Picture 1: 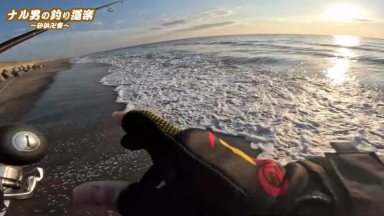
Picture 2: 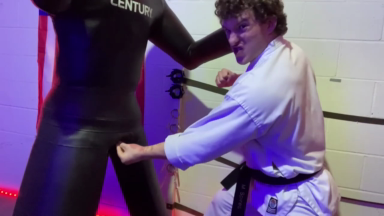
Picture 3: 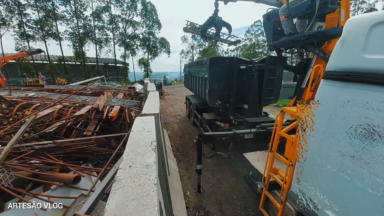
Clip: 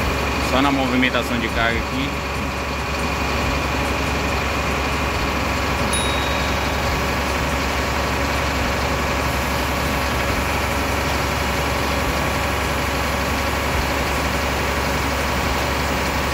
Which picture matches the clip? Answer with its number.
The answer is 3